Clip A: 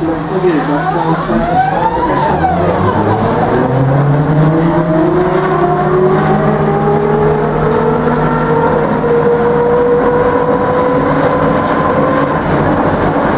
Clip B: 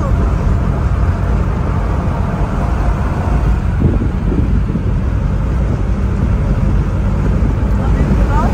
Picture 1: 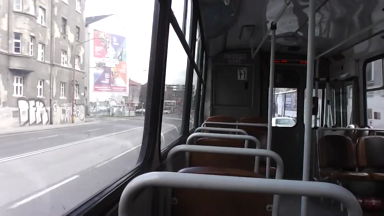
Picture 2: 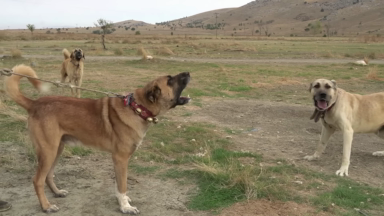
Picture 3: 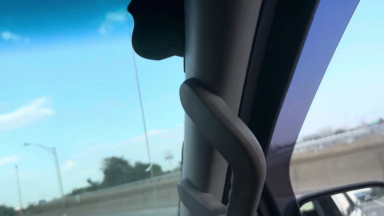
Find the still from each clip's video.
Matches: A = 1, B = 3